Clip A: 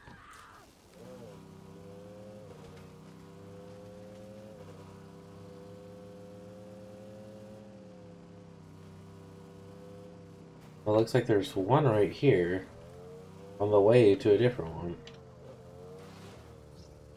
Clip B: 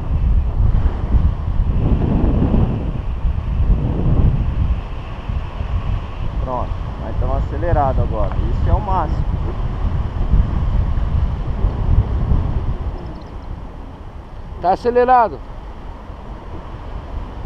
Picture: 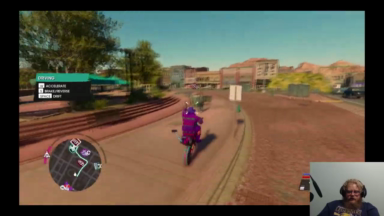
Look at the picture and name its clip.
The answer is A